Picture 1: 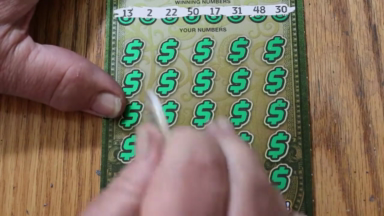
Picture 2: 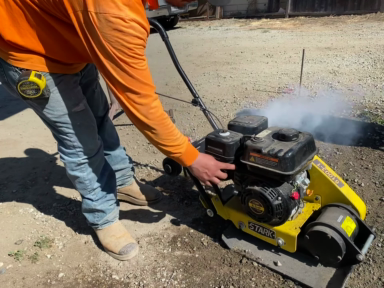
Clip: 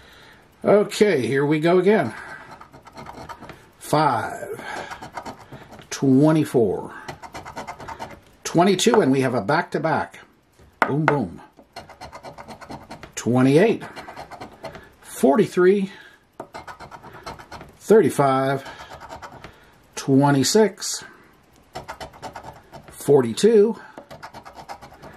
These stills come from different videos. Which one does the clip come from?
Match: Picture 1